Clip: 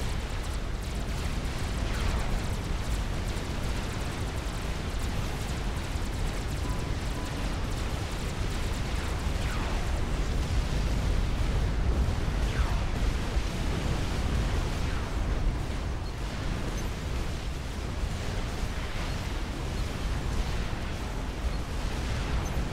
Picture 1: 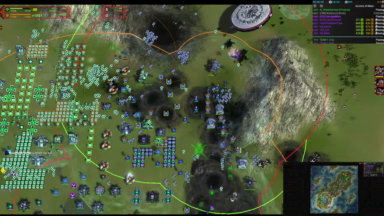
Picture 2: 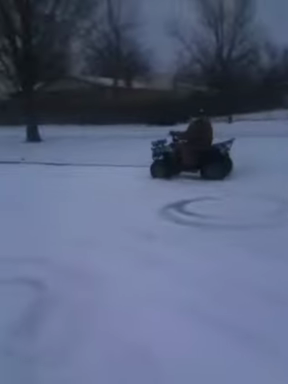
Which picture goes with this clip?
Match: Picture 1